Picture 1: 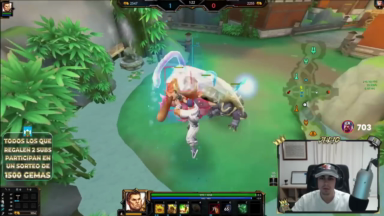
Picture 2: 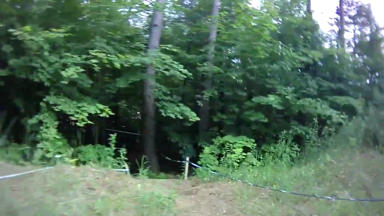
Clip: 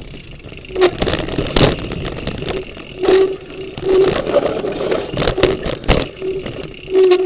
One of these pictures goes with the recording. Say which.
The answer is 2